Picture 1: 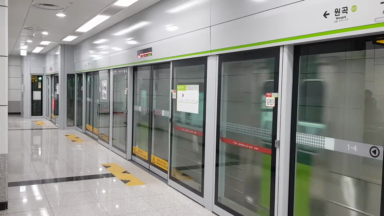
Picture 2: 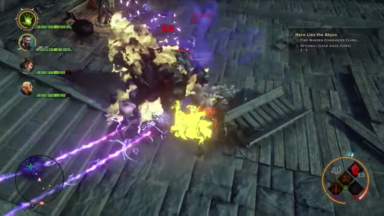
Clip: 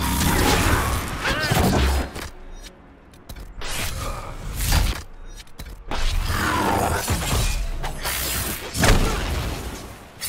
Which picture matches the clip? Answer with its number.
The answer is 2